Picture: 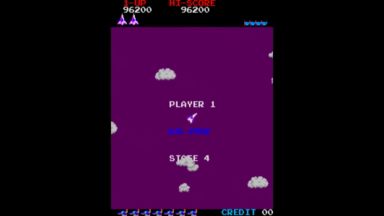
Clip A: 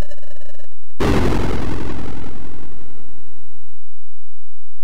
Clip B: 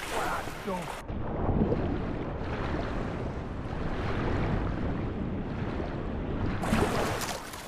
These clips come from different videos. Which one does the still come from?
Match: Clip A